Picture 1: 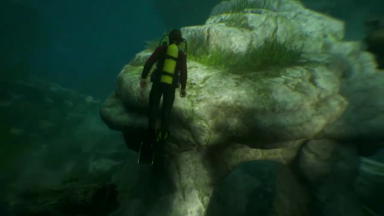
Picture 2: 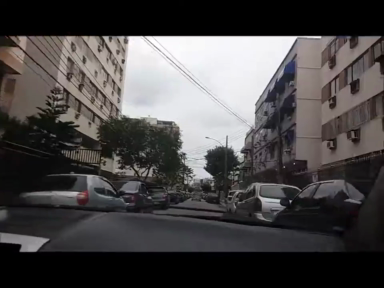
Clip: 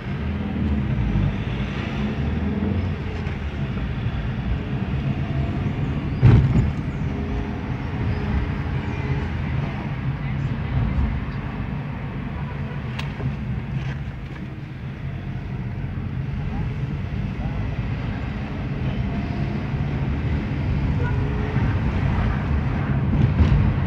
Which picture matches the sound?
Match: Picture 2